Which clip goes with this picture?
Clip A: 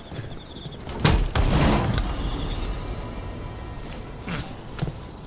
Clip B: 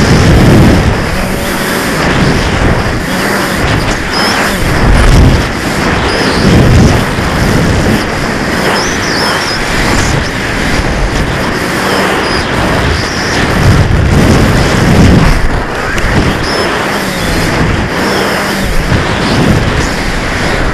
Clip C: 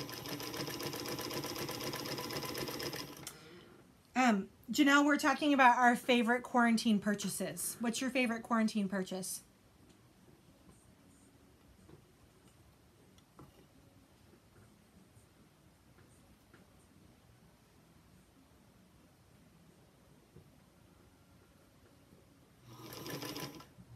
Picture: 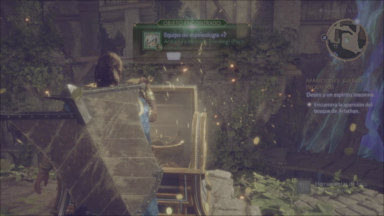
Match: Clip A